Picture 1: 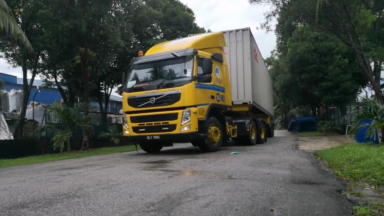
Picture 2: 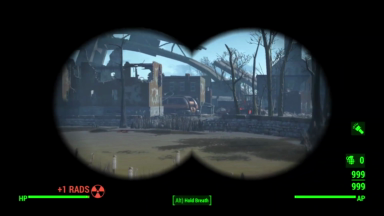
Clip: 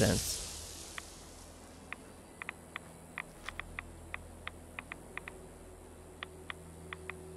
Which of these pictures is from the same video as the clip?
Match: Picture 2